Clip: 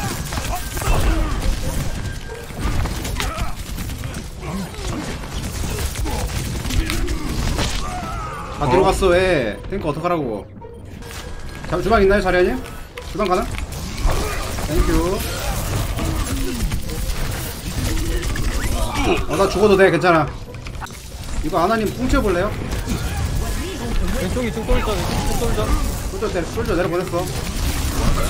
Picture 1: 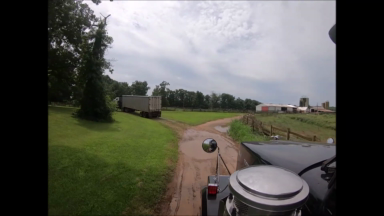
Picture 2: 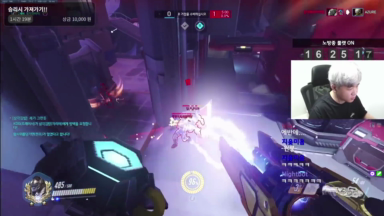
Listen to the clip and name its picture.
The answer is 2